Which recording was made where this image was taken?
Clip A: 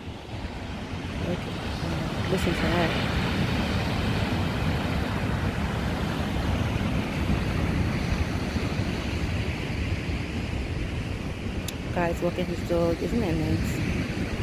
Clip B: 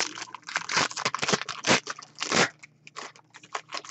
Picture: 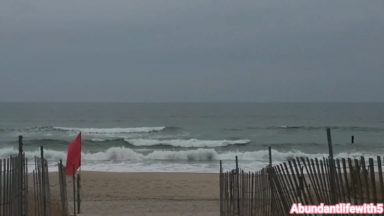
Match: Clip A